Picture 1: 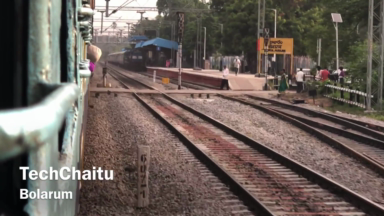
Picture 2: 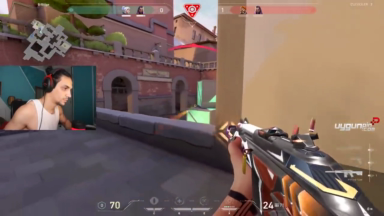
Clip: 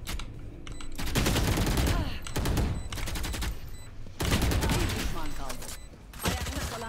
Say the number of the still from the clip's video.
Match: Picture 2